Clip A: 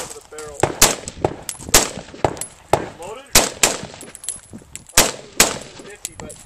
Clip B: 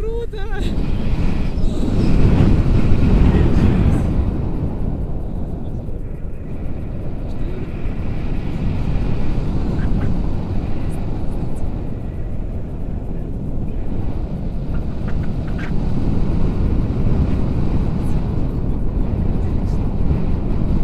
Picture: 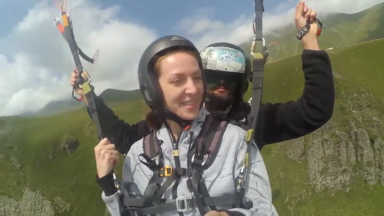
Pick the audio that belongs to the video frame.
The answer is B